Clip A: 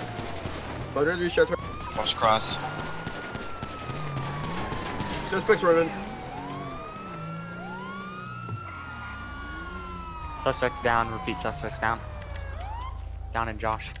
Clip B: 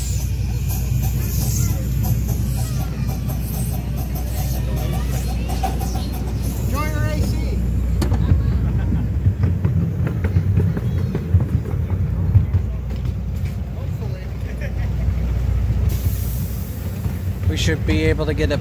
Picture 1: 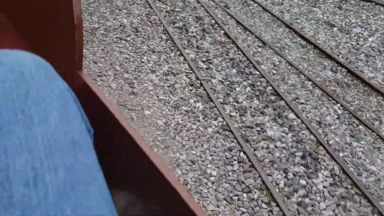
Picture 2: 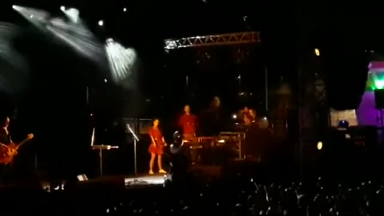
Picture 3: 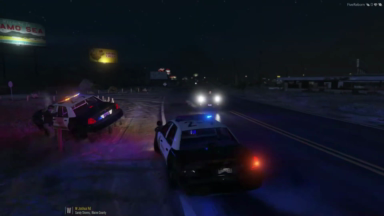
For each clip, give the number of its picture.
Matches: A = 3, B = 1